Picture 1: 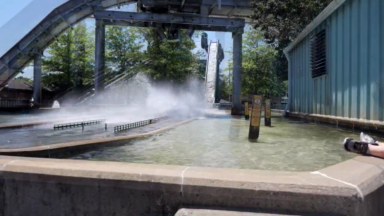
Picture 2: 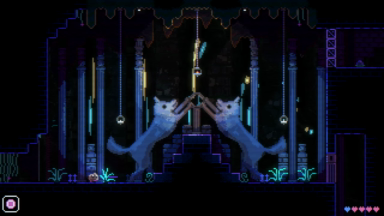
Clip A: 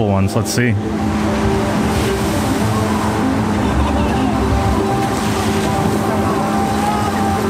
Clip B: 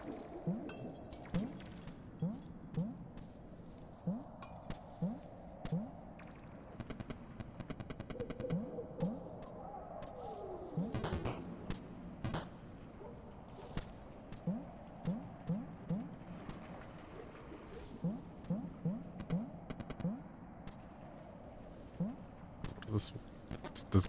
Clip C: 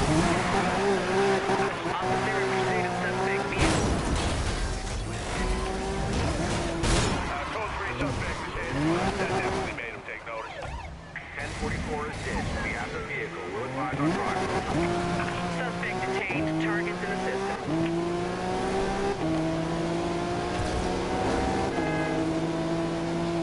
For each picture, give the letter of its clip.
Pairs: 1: A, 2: B